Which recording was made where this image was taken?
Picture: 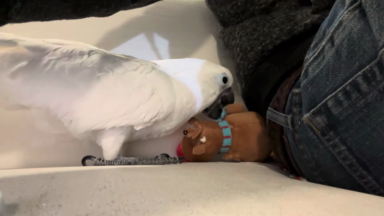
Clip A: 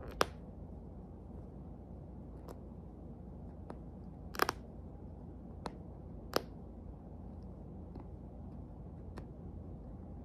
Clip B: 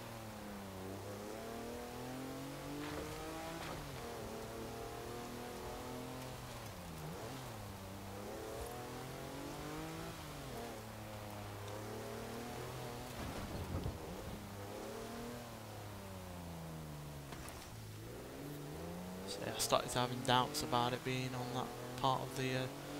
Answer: A